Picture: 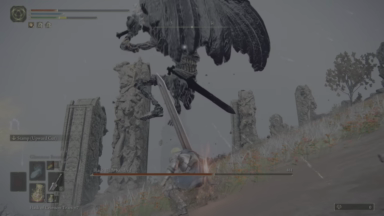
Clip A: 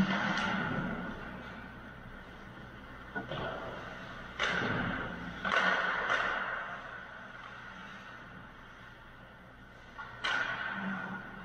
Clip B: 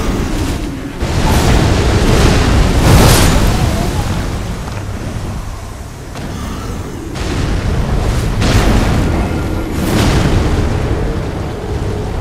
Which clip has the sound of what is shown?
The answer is B